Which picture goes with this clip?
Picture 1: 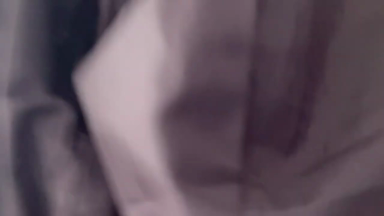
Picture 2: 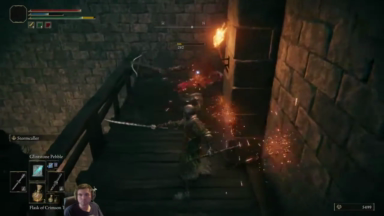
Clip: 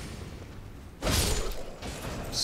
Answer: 2